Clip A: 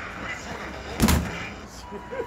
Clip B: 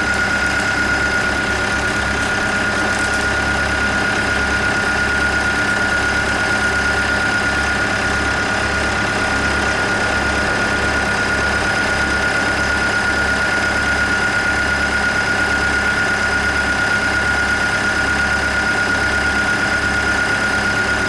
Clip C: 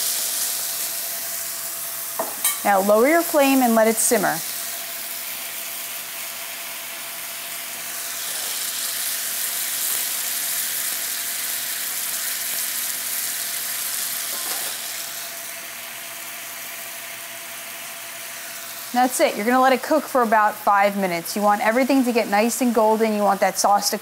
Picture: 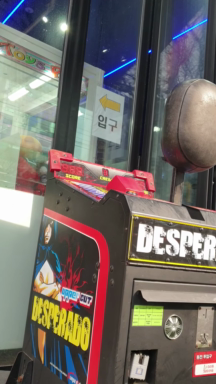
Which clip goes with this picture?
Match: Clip A